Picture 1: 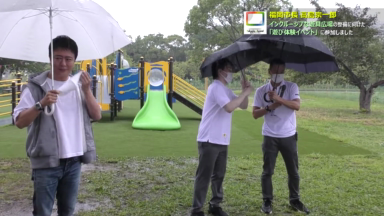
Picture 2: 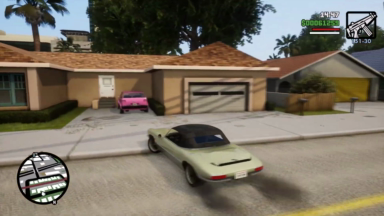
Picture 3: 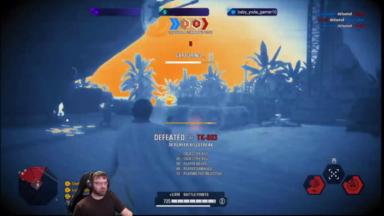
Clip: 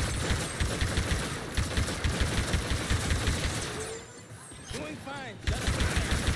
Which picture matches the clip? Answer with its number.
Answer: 3